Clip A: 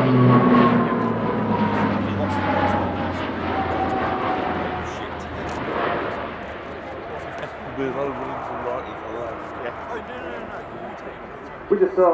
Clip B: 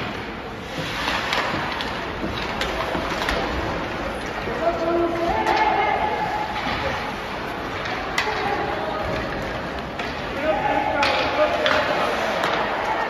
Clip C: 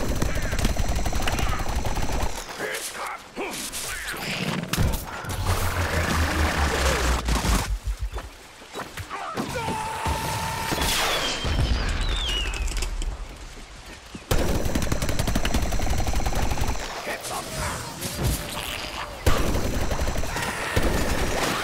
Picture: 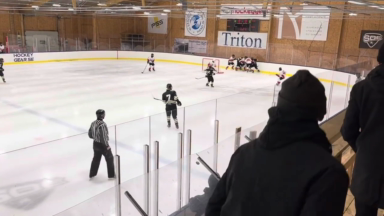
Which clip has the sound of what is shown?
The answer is B